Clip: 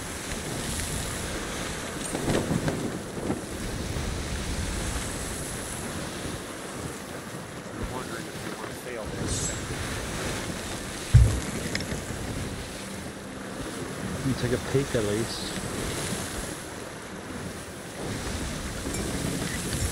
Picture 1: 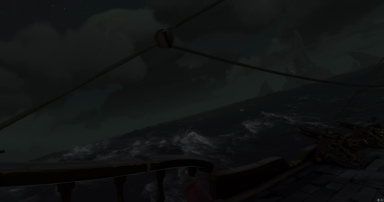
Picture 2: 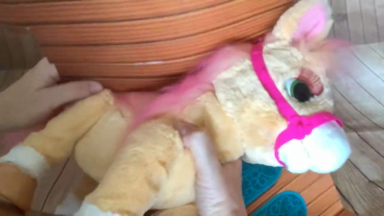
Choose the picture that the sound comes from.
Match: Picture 1